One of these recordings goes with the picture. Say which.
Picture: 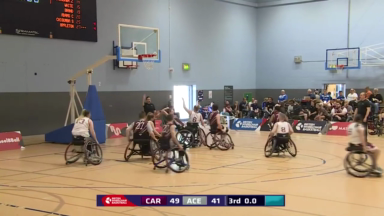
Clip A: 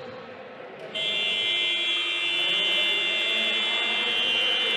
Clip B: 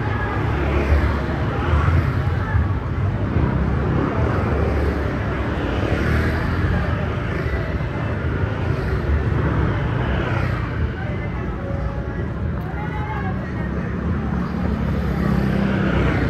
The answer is A